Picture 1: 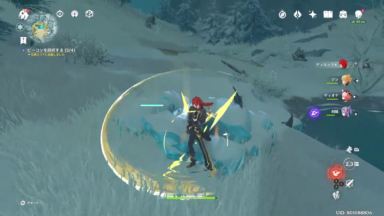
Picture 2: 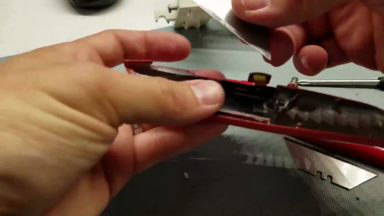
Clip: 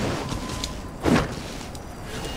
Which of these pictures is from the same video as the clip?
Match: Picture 1